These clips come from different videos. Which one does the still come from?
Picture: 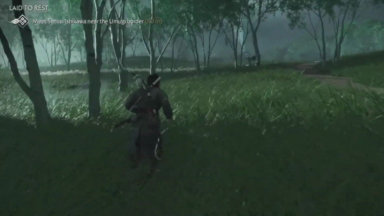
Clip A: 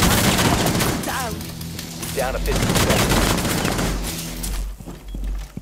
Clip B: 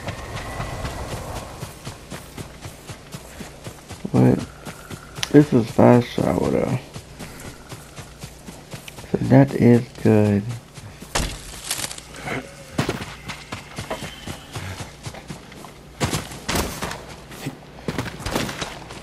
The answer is B